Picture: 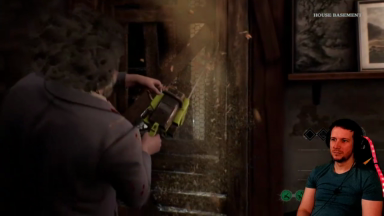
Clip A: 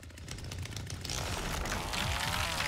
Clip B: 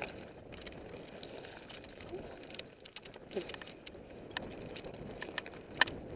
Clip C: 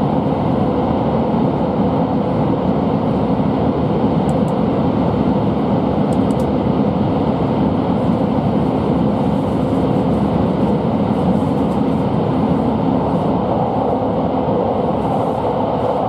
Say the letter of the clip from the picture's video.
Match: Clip A